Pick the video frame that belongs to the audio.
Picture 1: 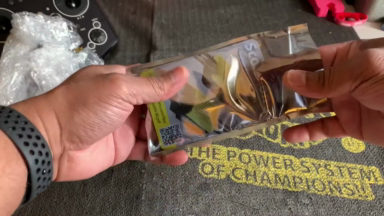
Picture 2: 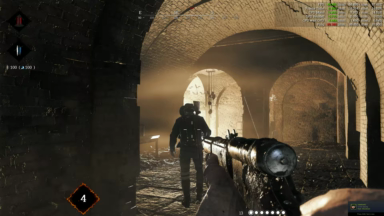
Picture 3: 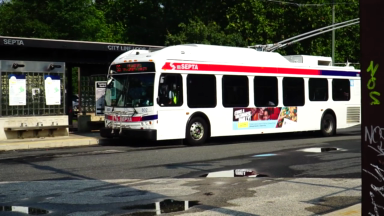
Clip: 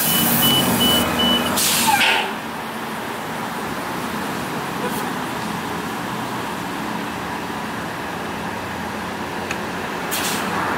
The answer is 3